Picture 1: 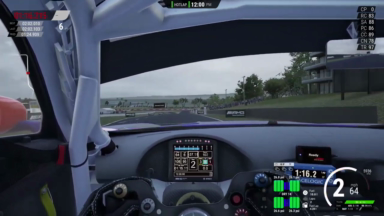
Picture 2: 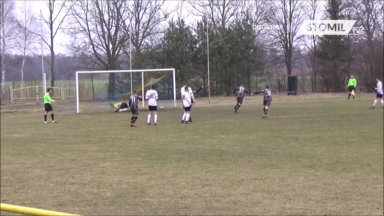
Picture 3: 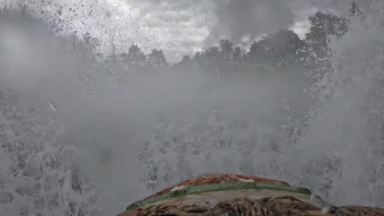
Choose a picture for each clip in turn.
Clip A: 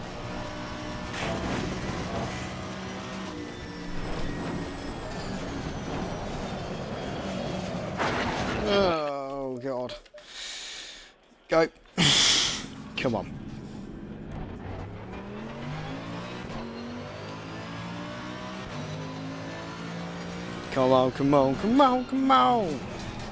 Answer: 1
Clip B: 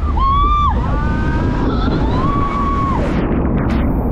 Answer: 3